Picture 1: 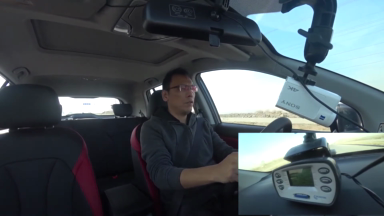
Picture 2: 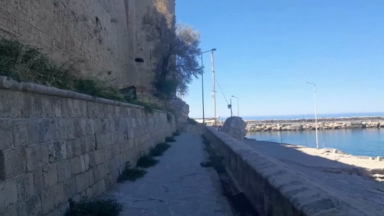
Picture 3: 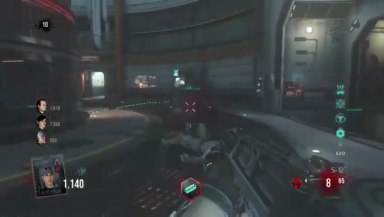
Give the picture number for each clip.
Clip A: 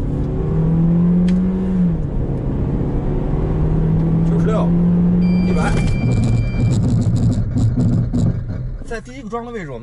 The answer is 1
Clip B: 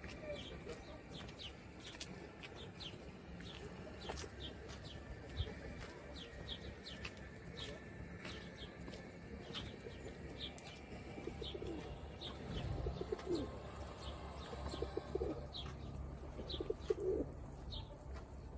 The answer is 2